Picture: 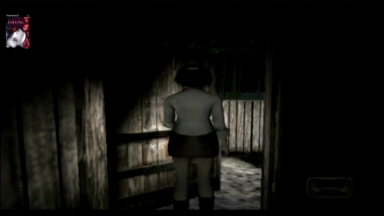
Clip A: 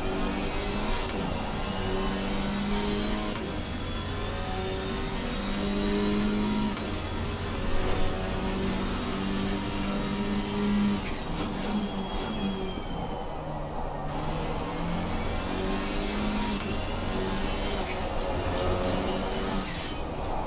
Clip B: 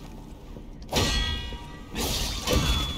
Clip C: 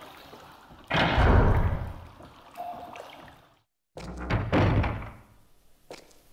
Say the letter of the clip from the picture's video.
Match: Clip C